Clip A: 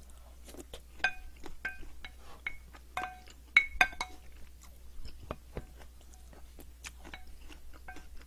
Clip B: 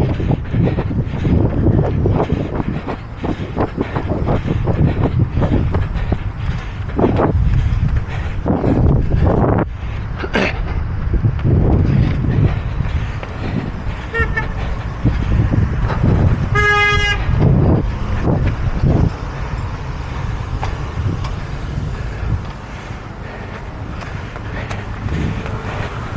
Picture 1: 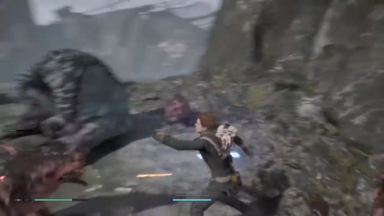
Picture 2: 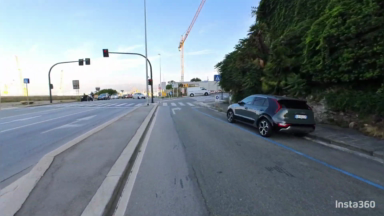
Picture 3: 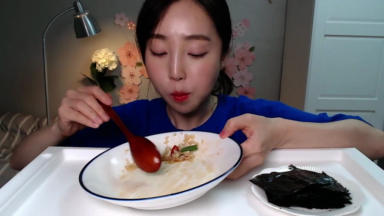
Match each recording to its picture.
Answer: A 3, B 2